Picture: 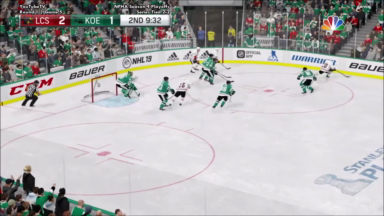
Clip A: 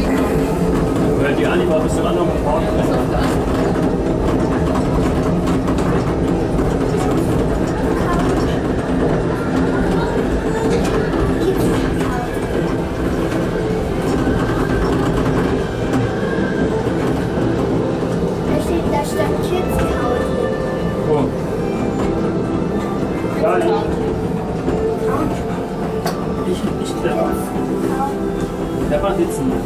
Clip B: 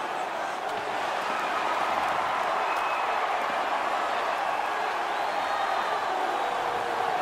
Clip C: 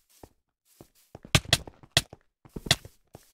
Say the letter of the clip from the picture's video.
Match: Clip B